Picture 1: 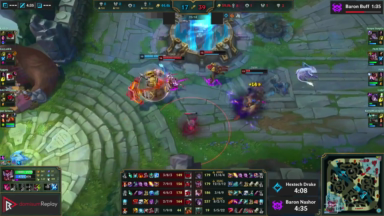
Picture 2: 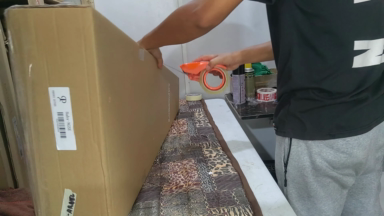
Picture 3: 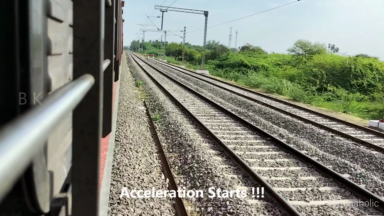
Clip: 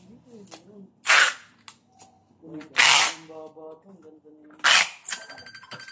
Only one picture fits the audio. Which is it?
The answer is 2